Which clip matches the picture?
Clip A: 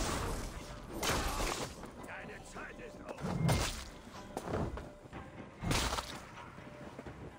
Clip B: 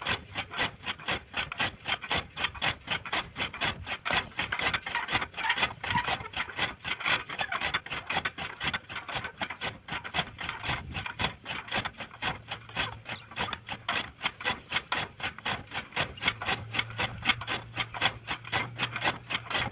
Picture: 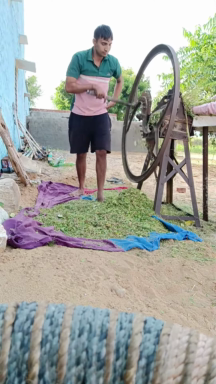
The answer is B